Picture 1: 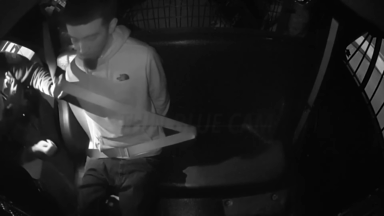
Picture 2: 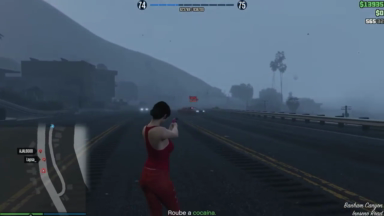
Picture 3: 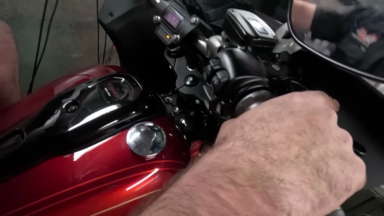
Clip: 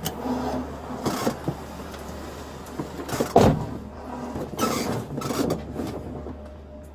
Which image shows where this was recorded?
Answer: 1